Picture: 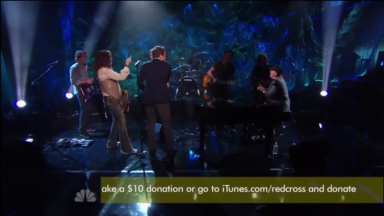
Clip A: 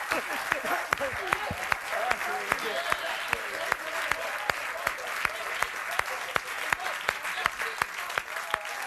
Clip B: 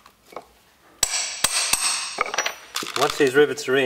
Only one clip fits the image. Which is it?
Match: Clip A